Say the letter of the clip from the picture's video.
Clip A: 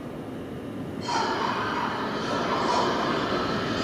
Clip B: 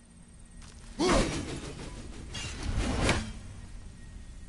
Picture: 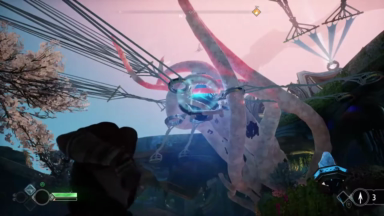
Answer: B